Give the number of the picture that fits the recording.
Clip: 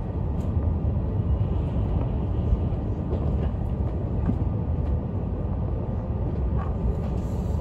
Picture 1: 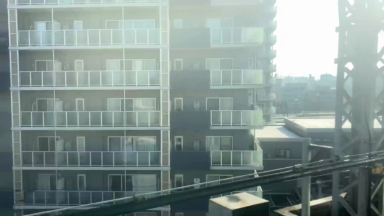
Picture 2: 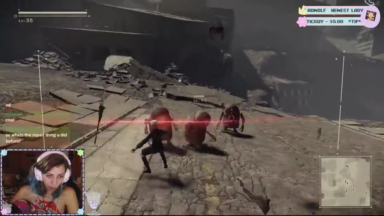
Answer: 1